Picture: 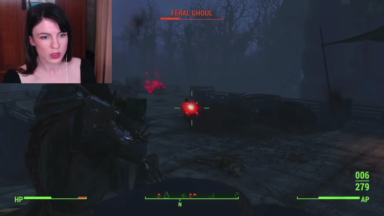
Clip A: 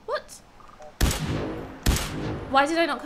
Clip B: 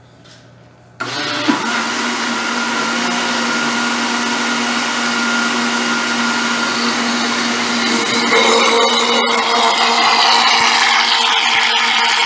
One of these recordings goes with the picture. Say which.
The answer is A